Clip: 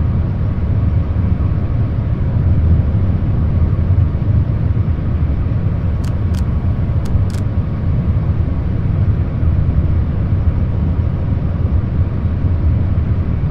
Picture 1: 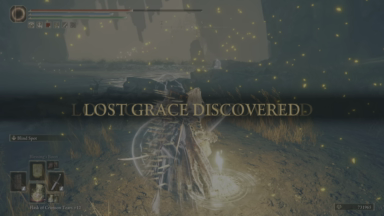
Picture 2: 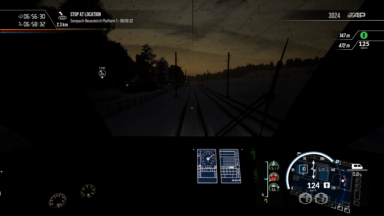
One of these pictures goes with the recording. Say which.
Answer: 2